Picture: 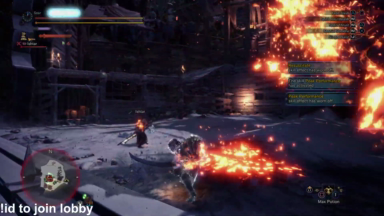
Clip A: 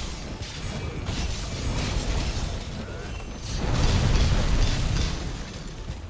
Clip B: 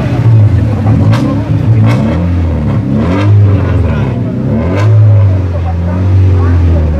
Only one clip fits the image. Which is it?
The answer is A